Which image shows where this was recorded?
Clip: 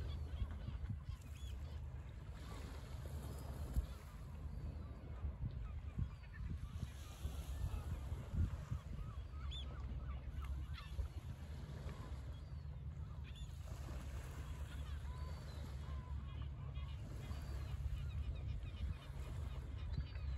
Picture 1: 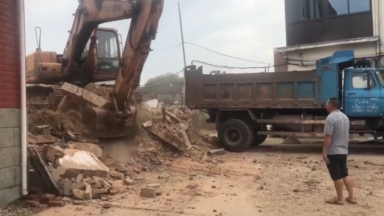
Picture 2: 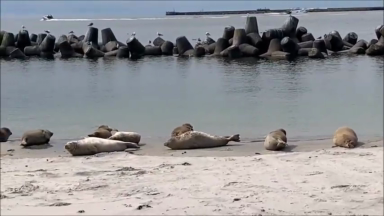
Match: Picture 2